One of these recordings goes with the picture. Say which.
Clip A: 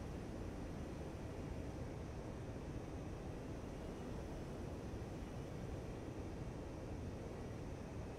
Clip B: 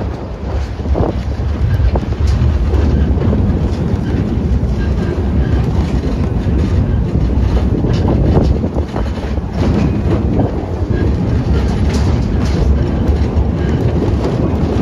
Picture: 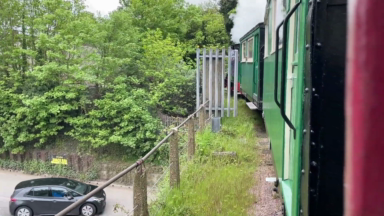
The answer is B